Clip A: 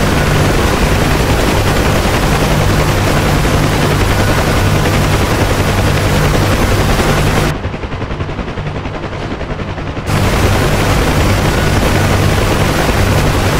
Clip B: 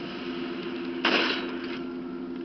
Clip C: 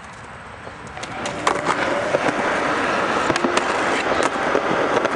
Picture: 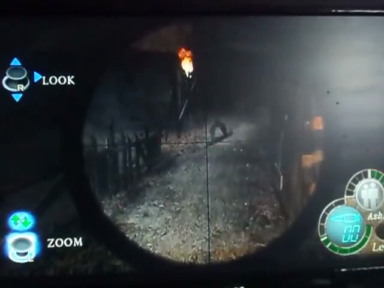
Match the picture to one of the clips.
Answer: B